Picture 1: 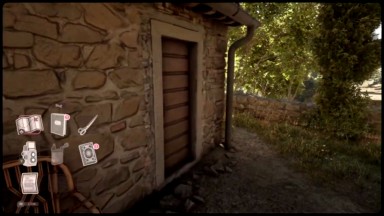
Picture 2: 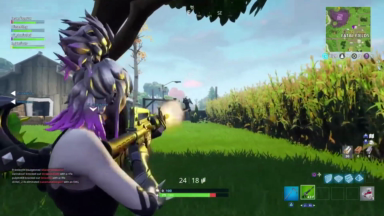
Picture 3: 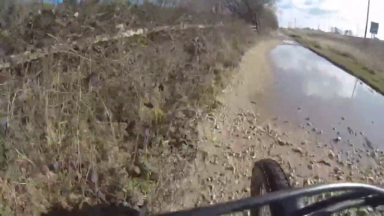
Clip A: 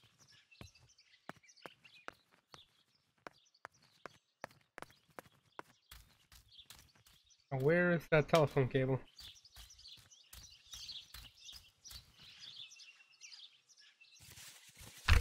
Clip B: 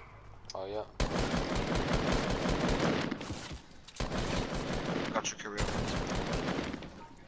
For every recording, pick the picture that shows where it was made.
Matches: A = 1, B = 2